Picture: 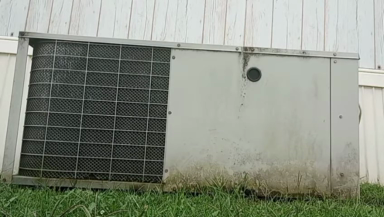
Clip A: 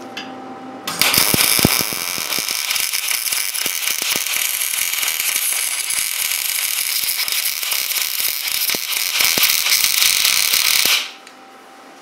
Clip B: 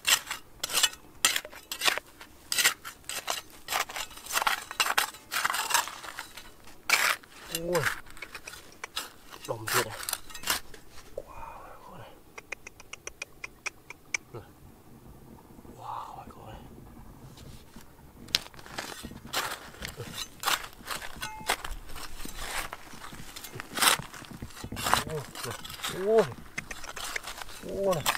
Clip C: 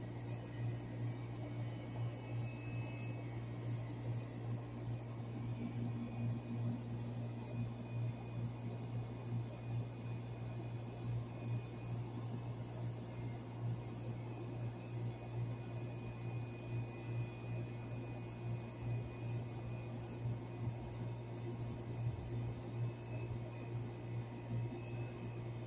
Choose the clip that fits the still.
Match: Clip C